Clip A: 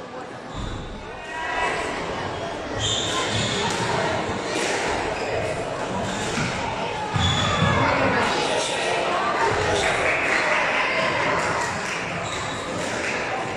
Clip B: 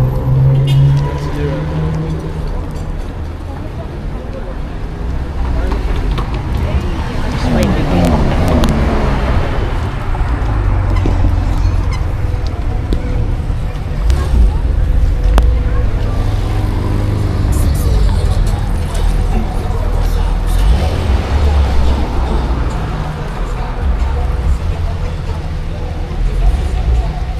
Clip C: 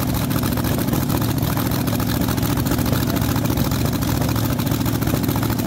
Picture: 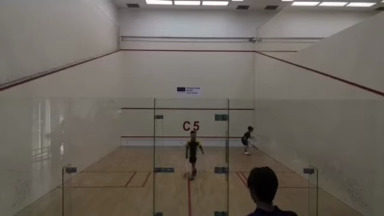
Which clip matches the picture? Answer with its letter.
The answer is A